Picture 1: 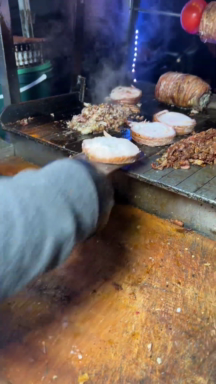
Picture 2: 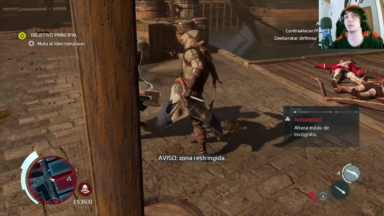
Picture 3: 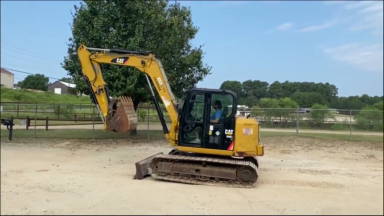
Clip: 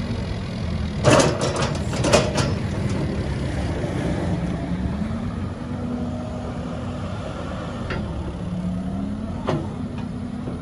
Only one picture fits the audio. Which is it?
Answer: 3